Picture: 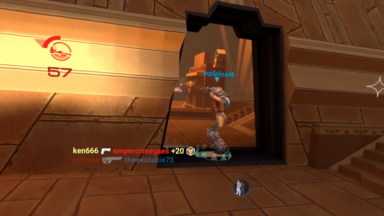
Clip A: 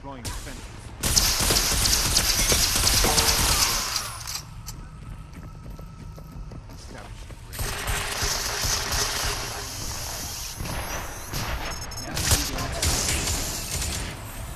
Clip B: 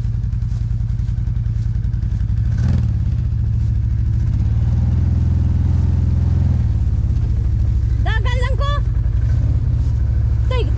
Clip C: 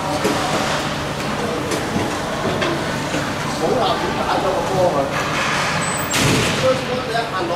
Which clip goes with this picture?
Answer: A